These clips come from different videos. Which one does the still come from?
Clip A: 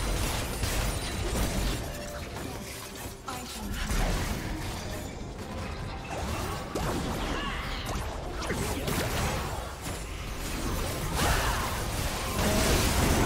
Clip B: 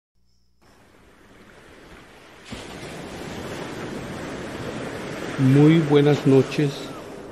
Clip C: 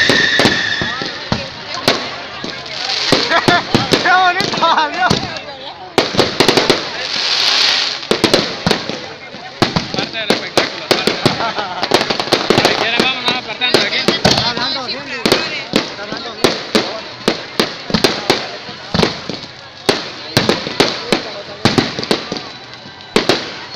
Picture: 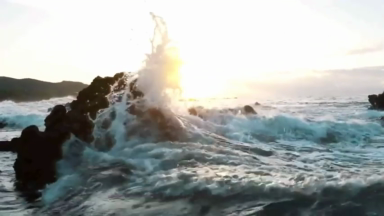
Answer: B